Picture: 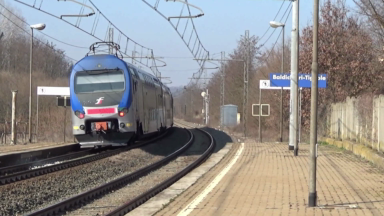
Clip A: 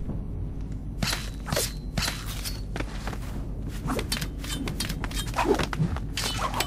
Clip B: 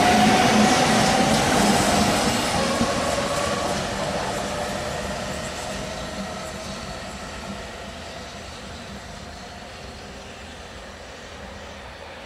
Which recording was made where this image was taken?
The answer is B